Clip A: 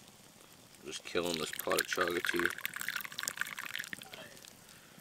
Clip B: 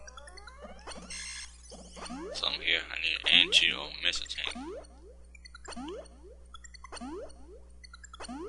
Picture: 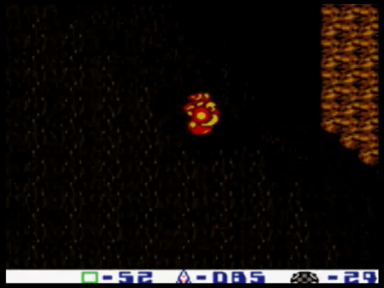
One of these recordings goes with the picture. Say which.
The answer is B